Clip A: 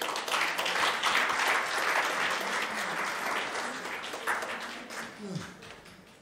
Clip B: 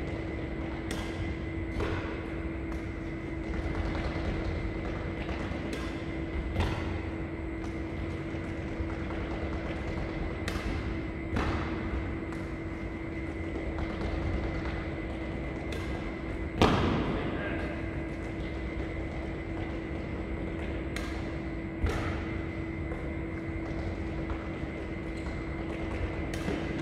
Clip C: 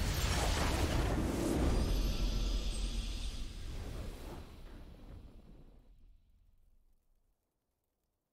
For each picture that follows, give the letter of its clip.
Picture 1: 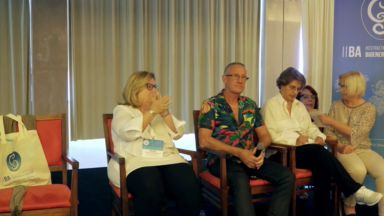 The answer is A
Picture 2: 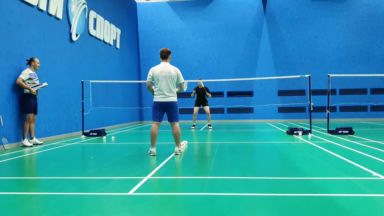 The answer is B